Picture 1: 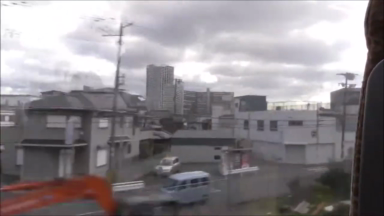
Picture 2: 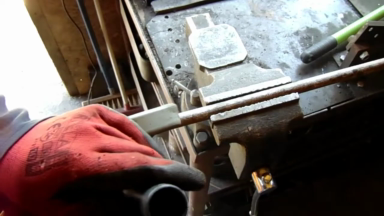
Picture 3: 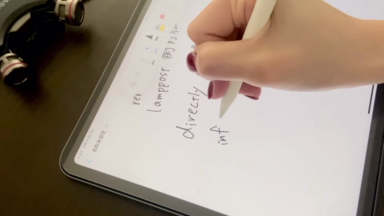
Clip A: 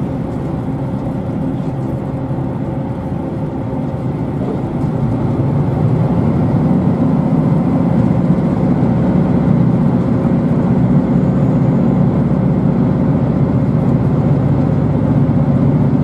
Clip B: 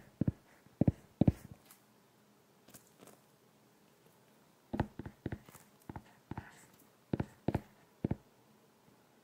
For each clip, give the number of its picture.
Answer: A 1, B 3